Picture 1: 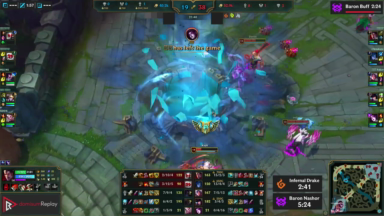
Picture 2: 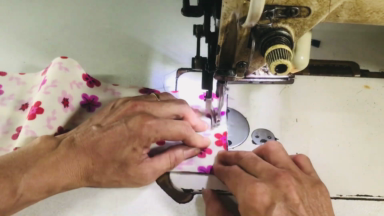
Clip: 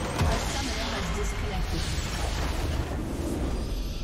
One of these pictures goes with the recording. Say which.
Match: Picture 1